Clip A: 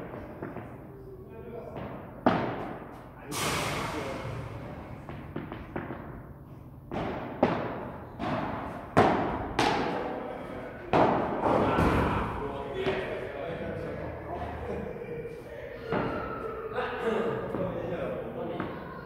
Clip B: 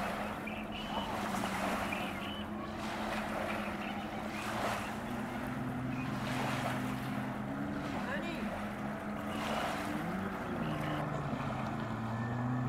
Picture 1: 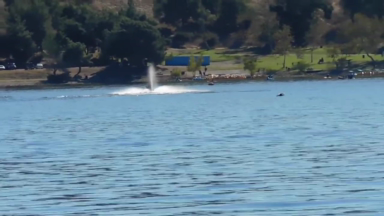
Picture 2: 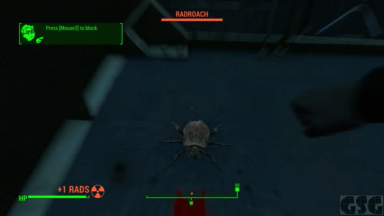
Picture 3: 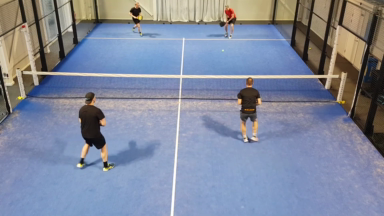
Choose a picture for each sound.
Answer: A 3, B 1